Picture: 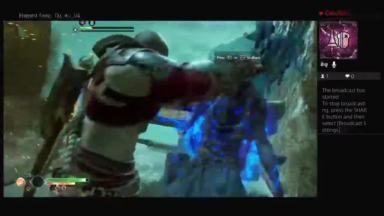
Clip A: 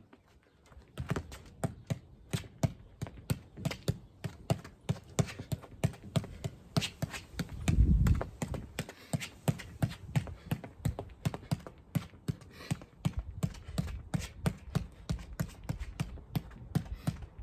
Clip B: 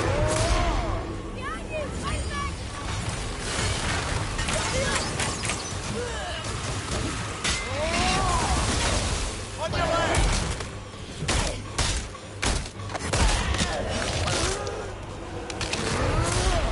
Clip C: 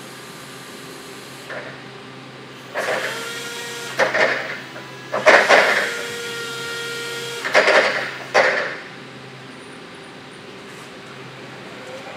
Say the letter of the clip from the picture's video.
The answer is B